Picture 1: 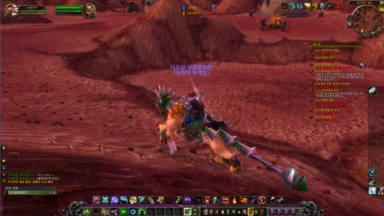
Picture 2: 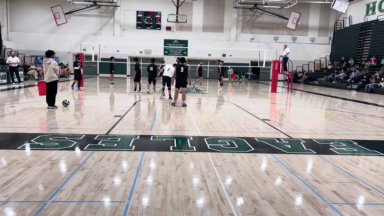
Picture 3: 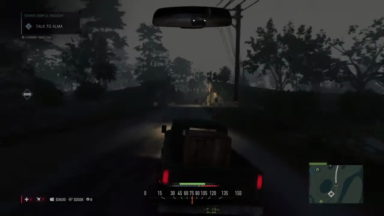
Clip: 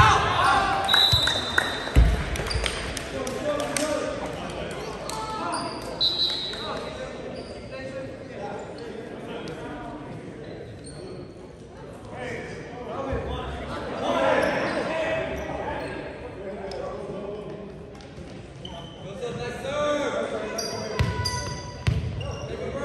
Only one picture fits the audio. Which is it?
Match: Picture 2